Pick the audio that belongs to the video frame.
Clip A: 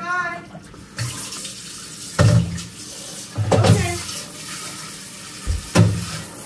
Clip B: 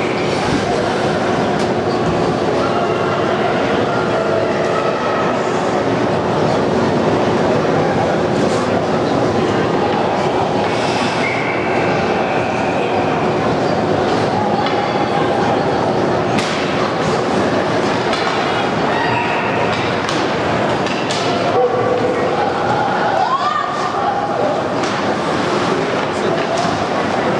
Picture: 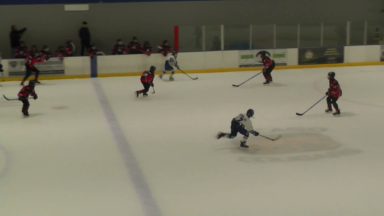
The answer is B